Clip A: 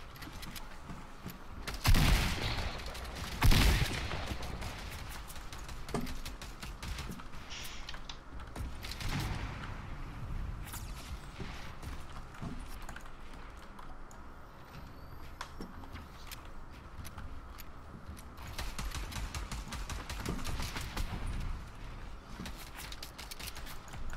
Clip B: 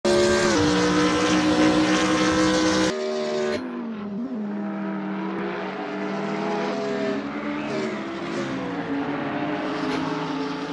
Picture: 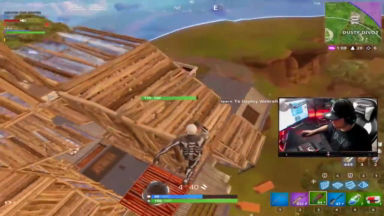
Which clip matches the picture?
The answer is A